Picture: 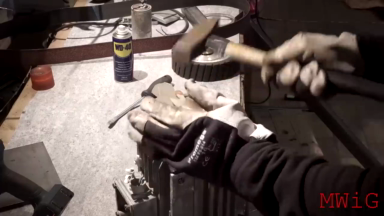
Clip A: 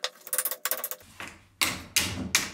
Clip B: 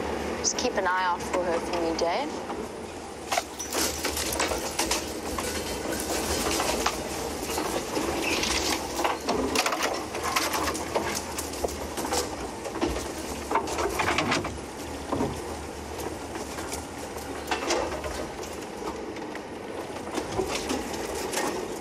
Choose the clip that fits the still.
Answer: A